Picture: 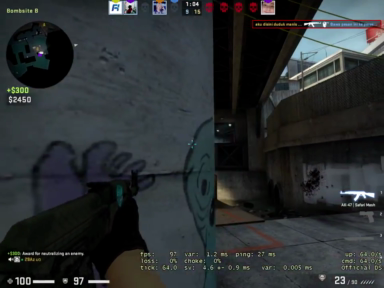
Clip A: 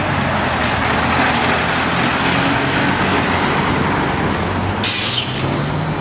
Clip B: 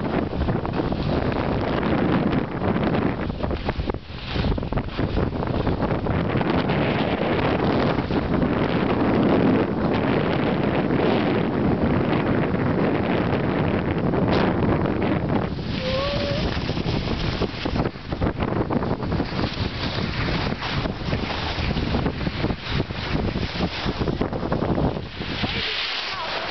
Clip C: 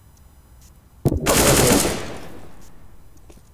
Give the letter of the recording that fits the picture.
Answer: C